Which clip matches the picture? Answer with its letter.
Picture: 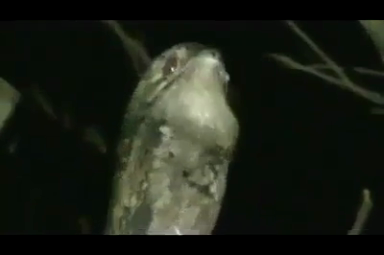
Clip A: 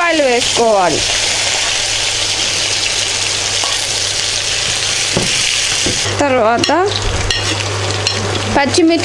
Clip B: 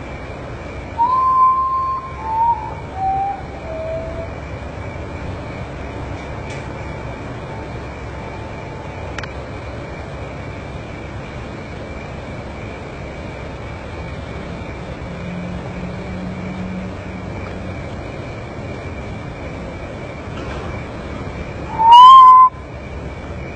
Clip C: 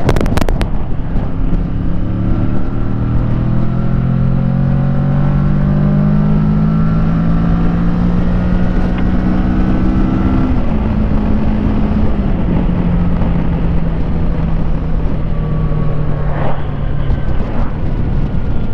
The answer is B